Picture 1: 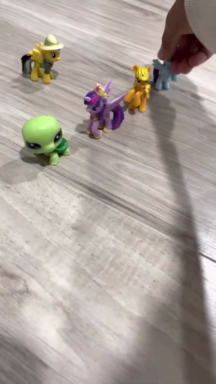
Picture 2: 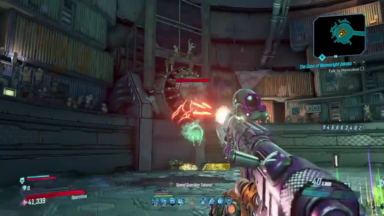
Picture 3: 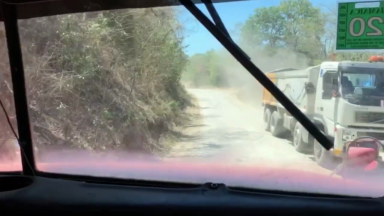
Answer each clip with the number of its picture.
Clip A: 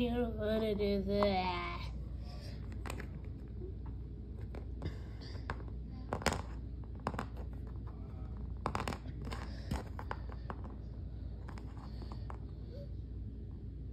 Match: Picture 1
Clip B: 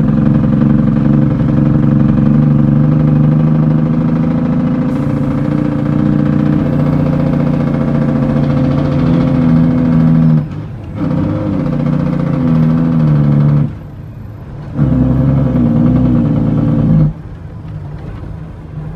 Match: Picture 3